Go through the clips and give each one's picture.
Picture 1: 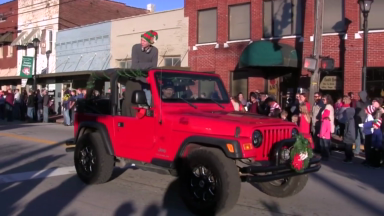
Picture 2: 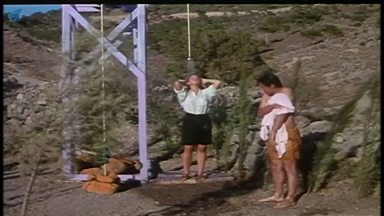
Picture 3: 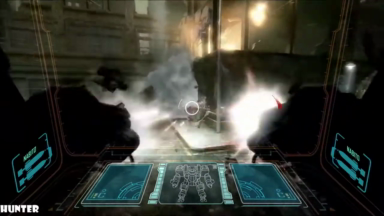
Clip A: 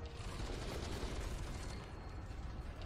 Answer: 3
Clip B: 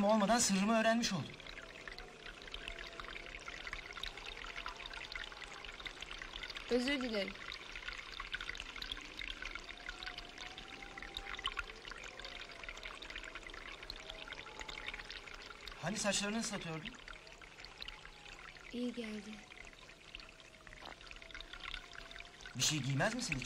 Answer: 2